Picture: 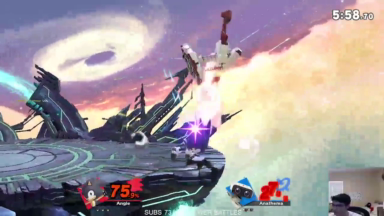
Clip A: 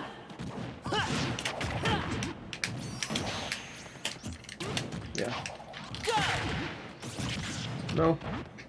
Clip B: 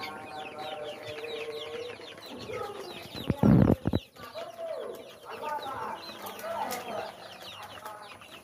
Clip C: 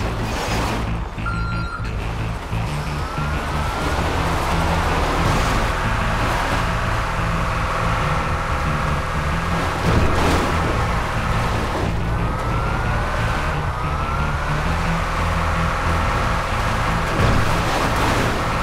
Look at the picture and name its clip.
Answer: A